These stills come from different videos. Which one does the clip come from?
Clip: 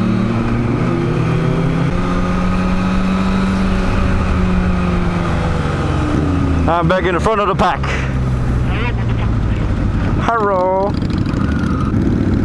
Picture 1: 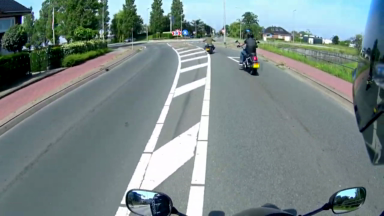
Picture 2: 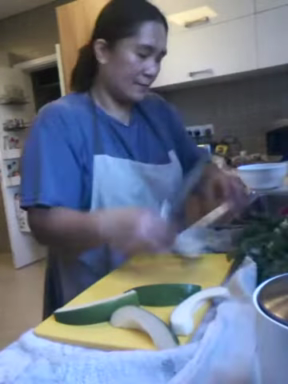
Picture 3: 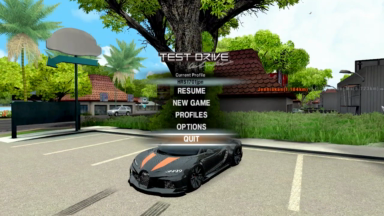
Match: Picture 1